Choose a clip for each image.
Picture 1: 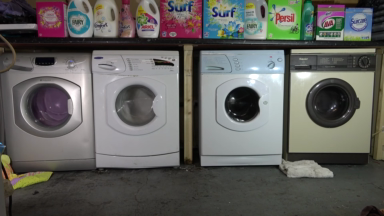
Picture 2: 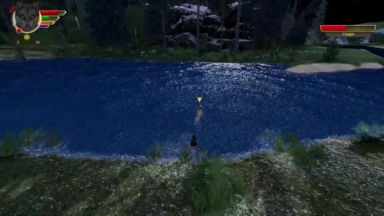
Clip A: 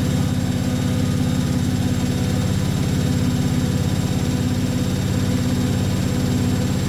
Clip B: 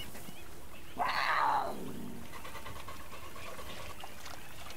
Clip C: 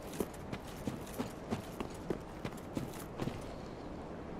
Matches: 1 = A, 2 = B